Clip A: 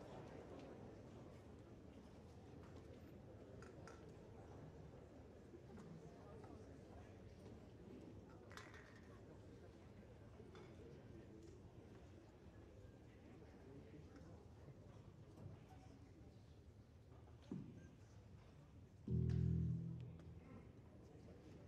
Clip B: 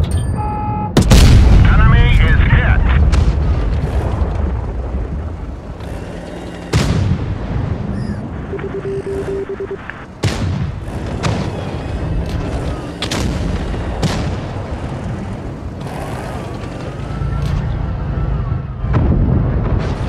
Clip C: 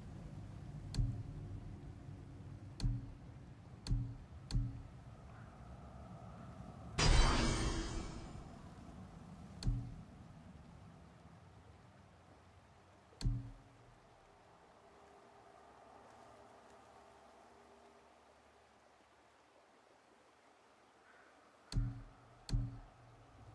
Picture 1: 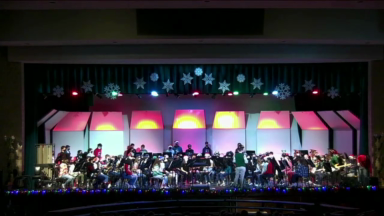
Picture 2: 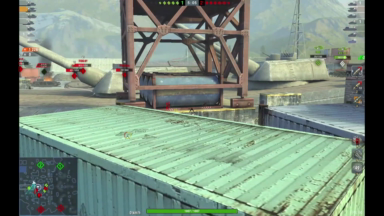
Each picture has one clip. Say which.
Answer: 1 A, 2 B